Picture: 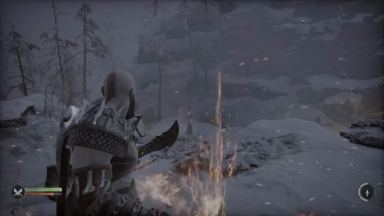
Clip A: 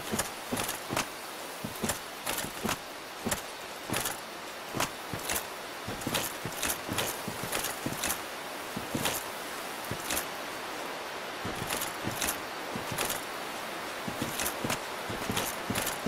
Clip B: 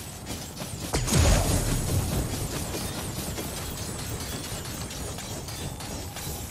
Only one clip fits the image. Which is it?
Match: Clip B